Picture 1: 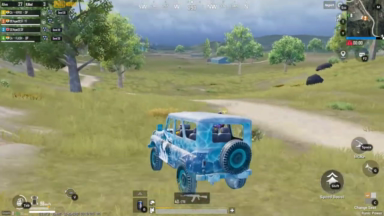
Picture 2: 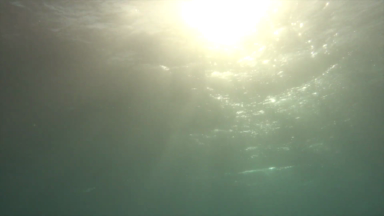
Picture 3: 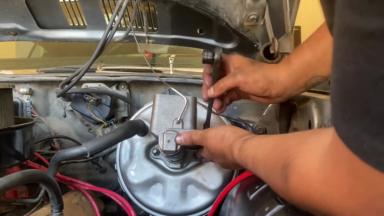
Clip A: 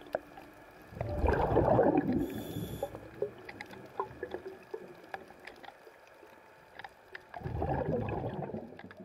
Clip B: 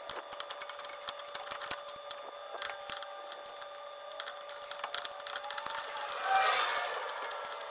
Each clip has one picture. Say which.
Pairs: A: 2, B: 3